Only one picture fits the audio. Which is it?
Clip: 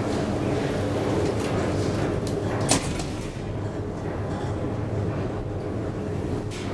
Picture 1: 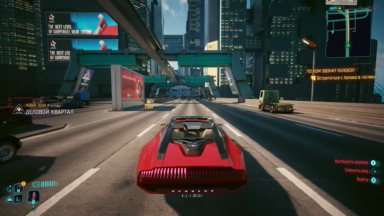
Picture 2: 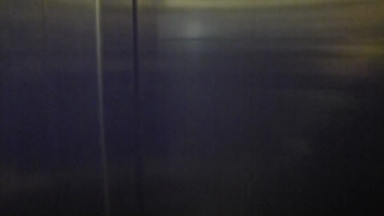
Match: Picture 2